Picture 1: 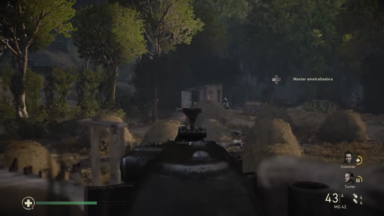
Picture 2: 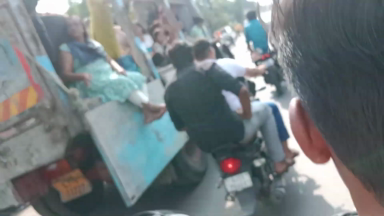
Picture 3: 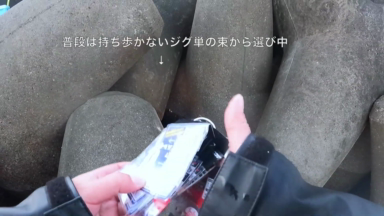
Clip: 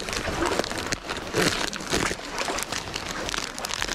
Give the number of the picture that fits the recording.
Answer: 3